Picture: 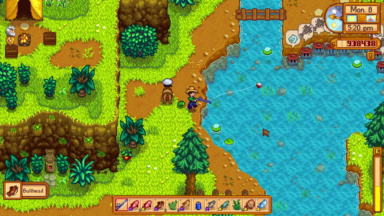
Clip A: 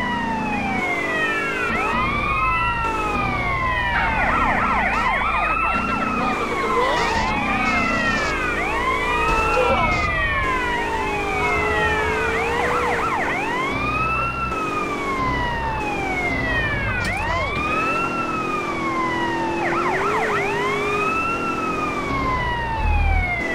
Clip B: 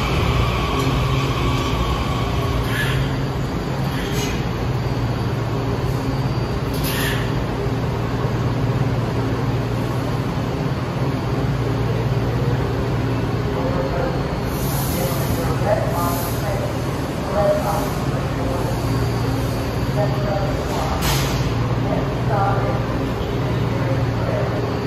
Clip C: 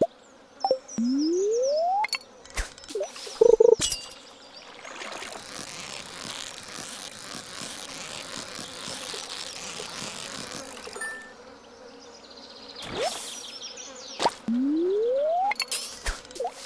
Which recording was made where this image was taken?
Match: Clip C